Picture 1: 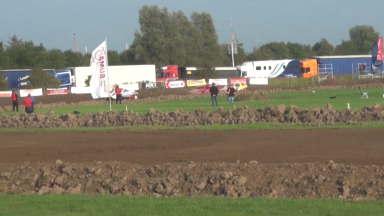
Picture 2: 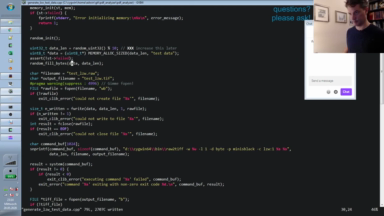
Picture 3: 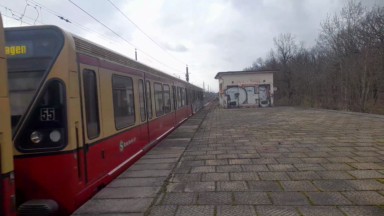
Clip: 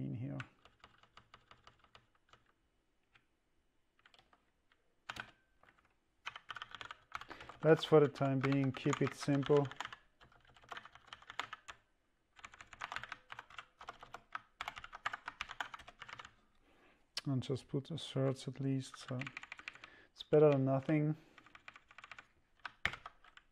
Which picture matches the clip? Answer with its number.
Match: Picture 2